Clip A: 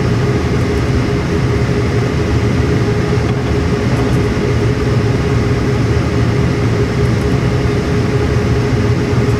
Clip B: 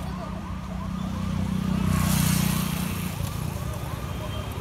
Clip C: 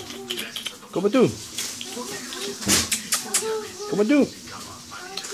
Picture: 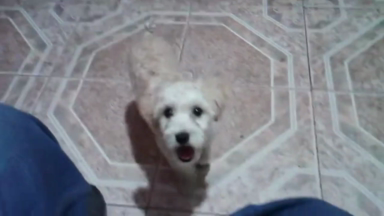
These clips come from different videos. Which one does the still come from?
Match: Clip C